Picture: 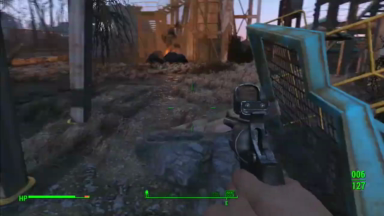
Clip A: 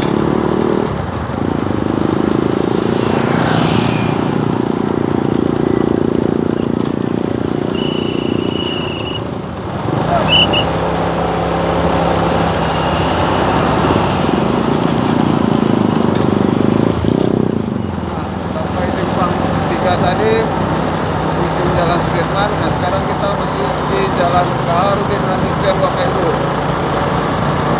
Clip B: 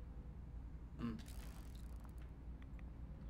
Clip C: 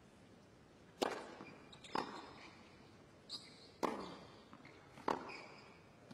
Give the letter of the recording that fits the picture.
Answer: B